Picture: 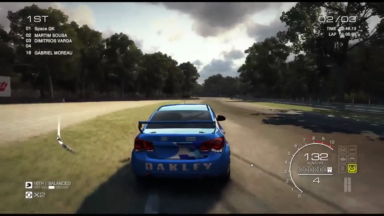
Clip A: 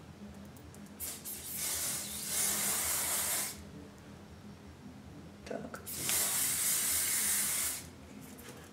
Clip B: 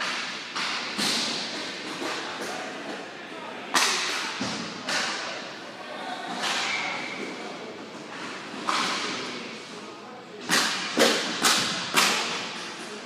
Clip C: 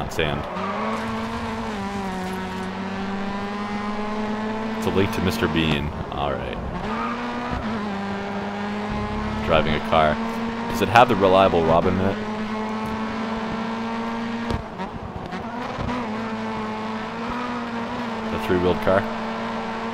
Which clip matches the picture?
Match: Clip C